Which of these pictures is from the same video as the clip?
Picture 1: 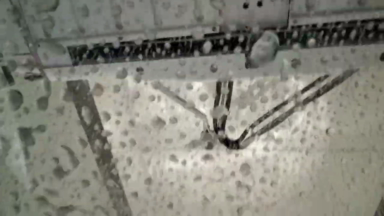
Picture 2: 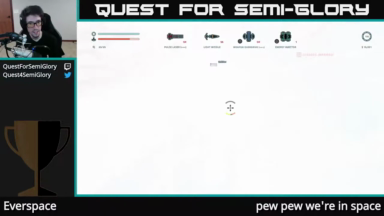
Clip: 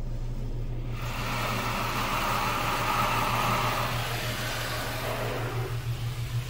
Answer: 1